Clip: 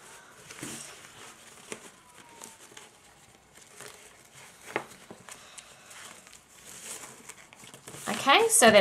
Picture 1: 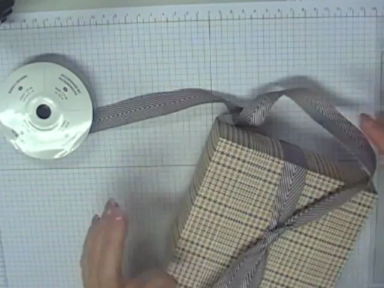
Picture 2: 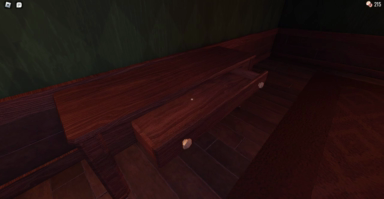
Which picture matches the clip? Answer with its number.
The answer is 1